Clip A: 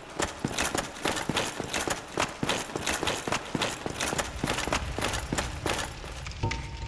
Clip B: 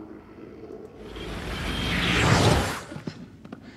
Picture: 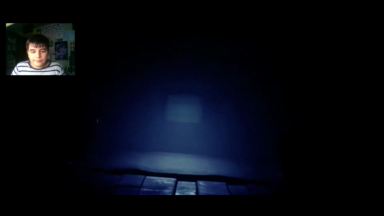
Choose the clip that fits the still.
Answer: B